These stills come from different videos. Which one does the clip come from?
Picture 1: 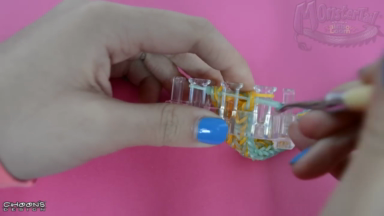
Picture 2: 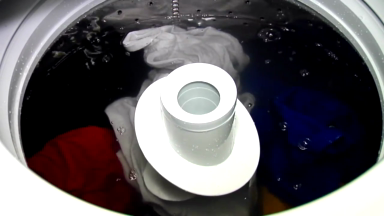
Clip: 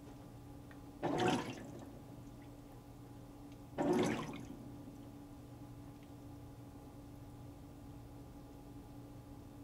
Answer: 2